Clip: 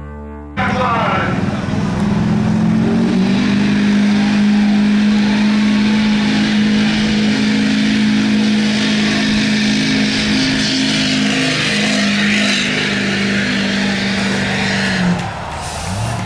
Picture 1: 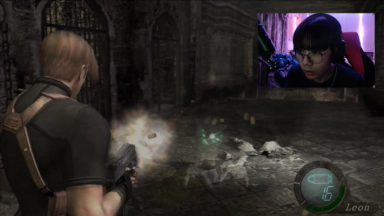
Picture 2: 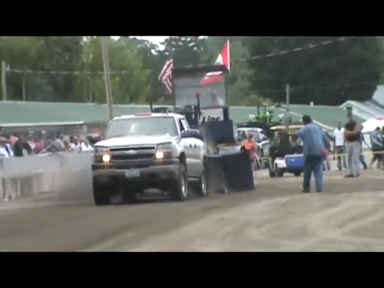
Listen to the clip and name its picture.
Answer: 2